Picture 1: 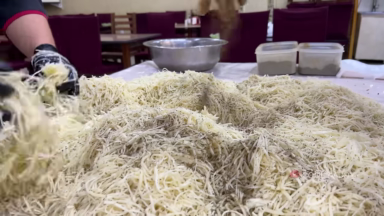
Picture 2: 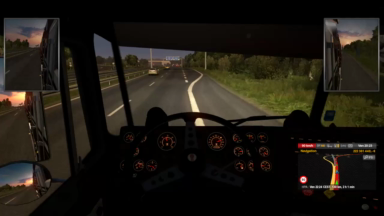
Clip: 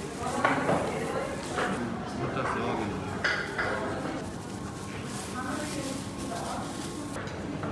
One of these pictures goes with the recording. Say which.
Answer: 1